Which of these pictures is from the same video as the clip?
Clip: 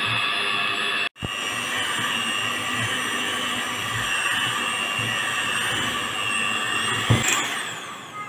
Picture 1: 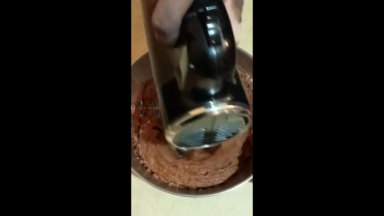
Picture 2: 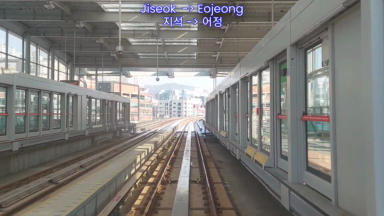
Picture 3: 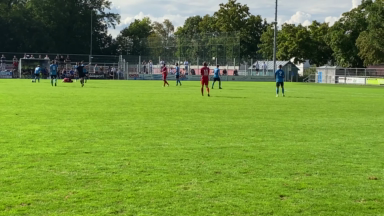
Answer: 1